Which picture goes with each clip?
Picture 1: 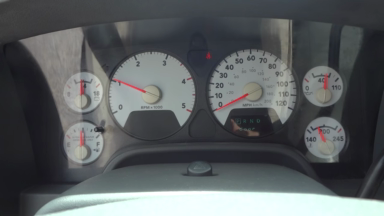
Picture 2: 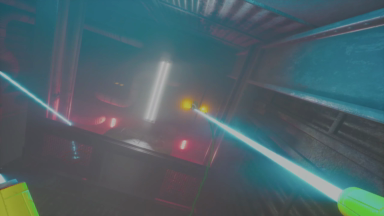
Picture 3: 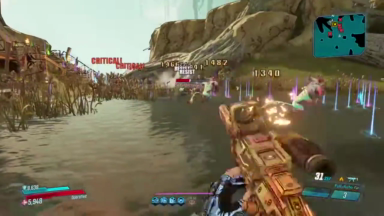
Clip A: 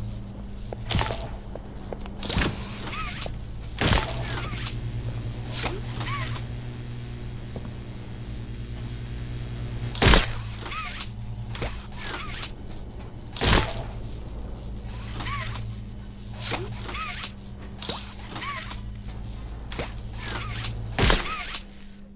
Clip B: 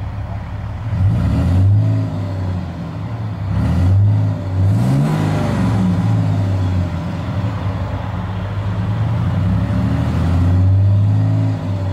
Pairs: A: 2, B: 1